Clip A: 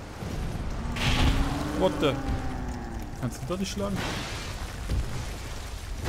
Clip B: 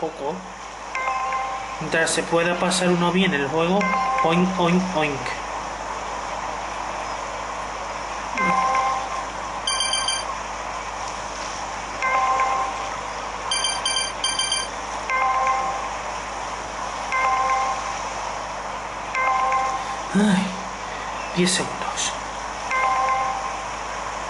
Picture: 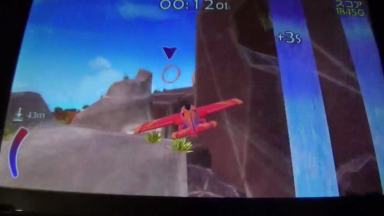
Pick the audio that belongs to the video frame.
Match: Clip B